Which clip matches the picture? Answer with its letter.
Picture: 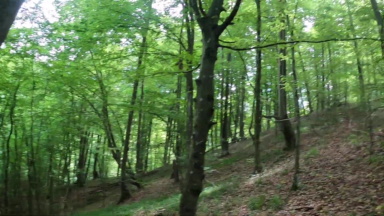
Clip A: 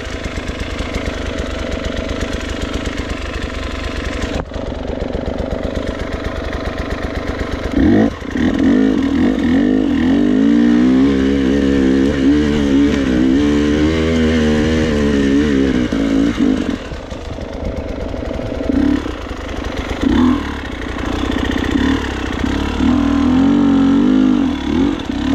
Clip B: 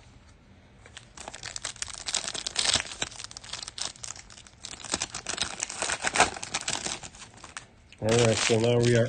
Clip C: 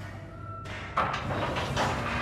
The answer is A